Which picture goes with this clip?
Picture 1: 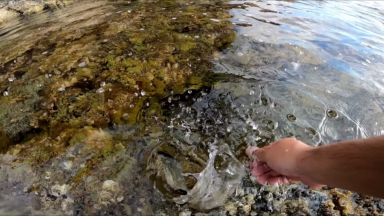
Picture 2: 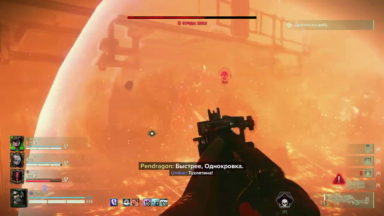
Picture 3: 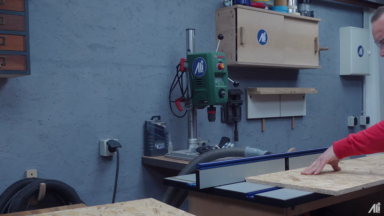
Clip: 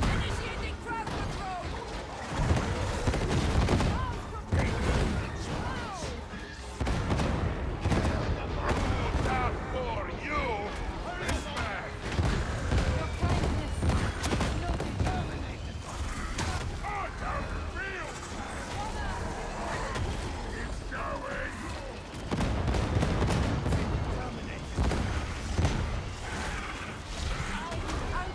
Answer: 2